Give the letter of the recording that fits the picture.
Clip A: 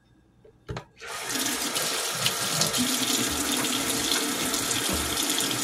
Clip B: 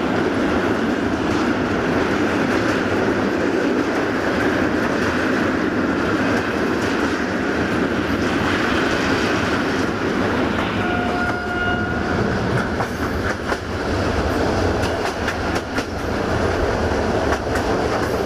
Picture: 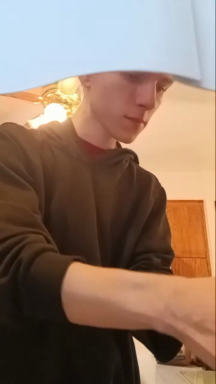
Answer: A